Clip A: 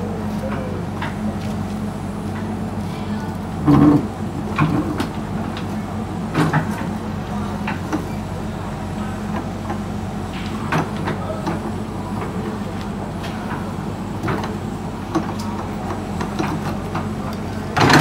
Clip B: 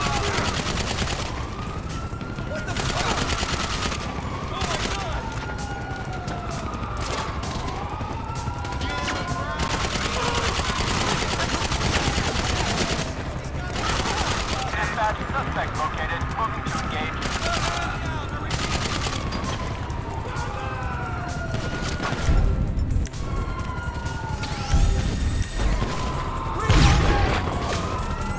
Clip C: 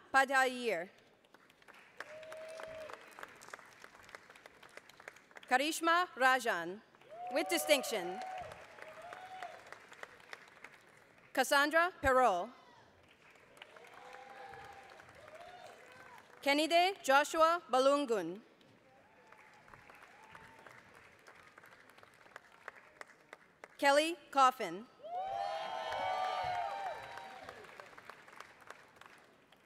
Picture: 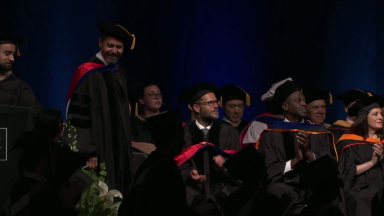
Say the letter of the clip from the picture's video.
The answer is C